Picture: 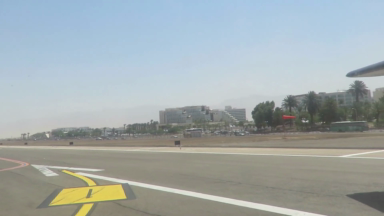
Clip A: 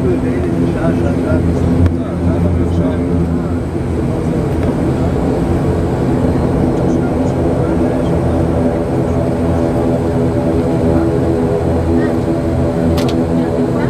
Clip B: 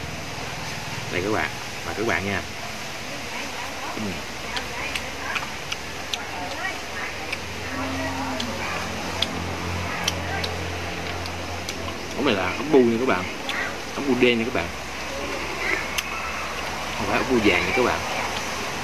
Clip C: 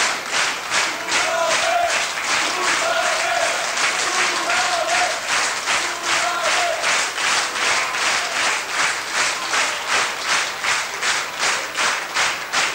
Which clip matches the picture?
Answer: A